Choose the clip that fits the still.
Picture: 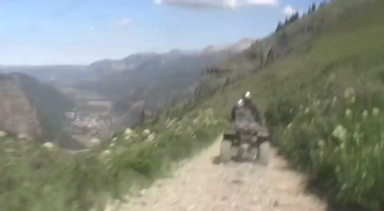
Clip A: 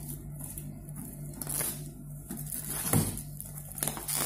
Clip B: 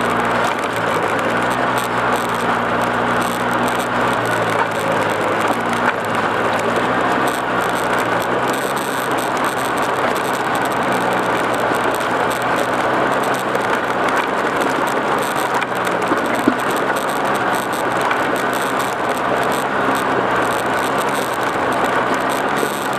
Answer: B